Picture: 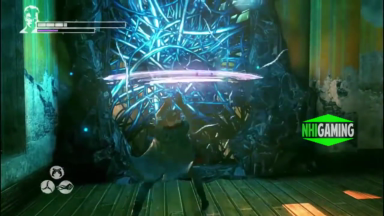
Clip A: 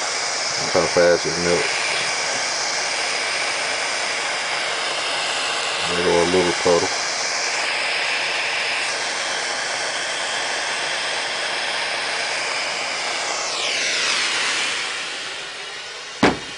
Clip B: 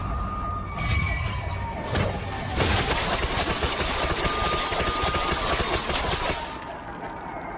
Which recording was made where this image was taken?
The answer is B